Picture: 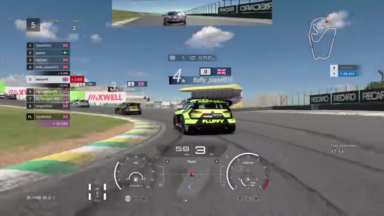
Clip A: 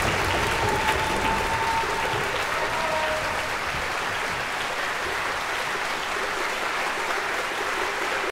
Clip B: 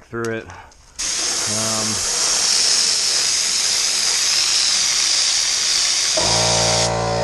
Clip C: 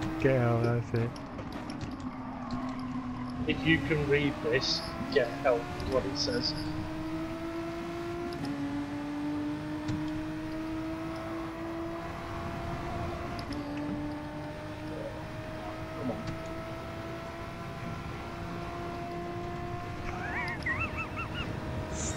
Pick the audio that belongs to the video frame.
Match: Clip C